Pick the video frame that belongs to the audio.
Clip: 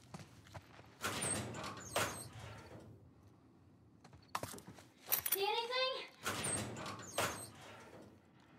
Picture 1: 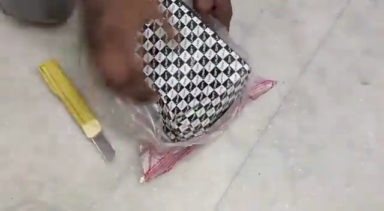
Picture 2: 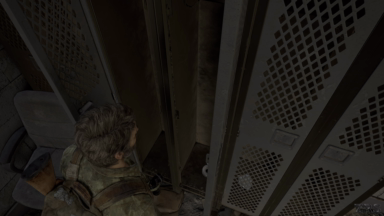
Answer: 2